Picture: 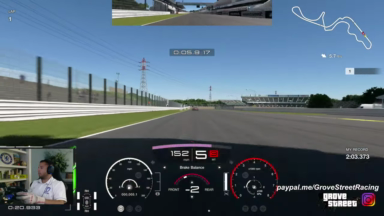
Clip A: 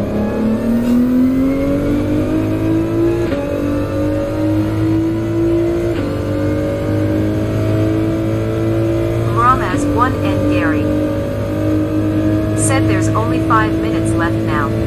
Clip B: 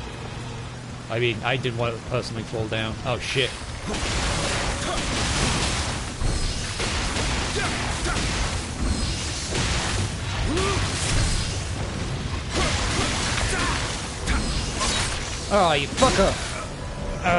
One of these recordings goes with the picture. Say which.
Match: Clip A